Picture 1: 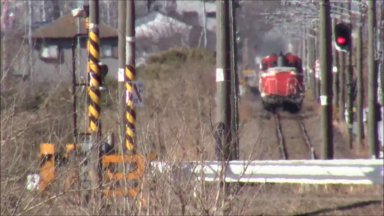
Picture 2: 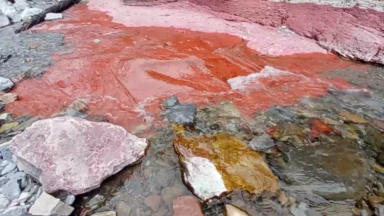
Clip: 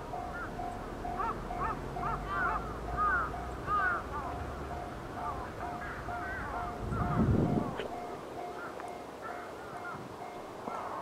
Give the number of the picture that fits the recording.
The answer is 1